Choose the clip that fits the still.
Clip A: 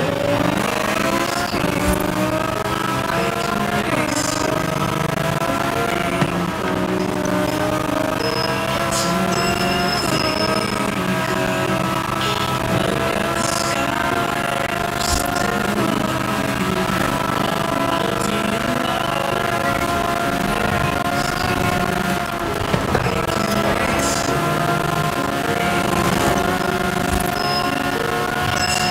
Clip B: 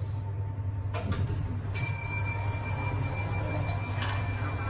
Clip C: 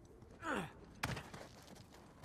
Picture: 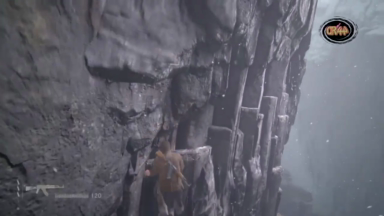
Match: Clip C